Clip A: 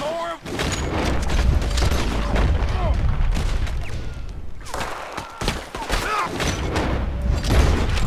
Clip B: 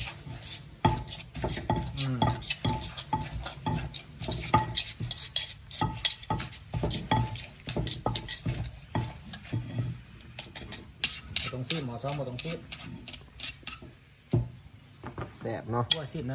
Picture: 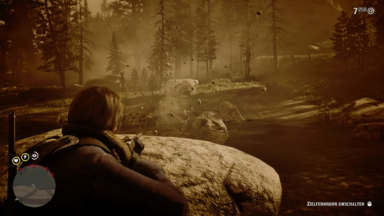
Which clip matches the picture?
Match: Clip A